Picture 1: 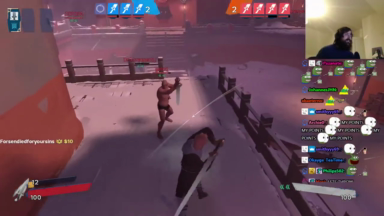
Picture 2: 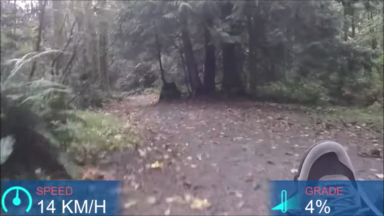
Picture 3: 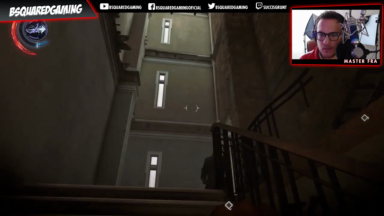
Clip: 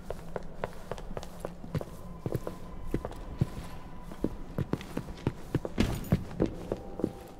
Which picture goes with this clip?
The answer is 3